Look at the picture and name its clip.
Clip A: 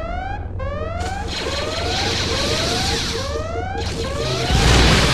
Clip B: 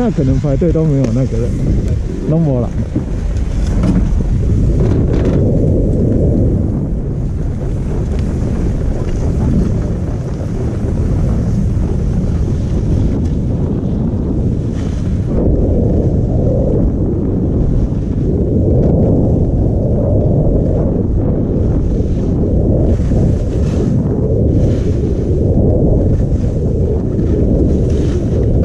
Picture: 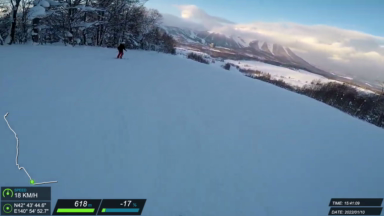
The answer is B